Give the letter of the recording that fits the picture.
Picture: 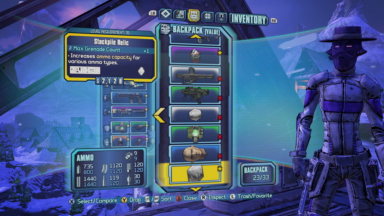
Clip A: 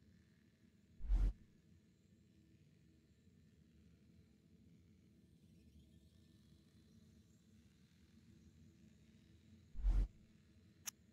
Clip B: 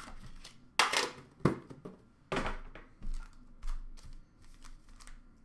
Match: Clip A